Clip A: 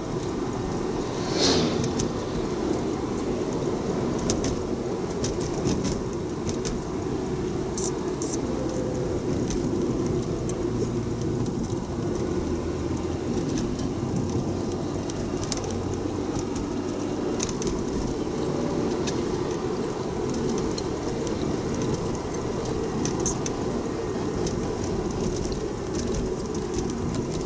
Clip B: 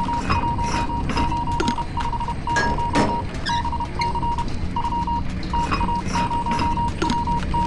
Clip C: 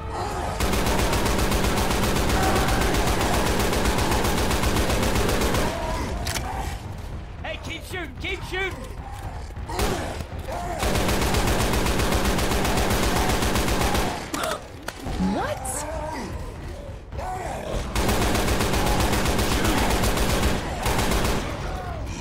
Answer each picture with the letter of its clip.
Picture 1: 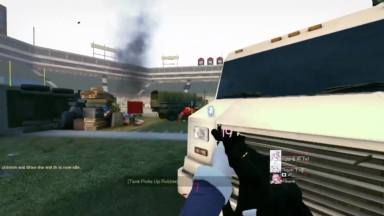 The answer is C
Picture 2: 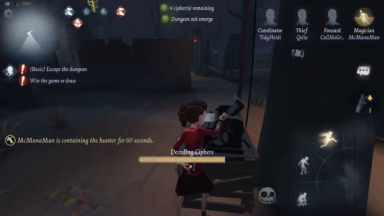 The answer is B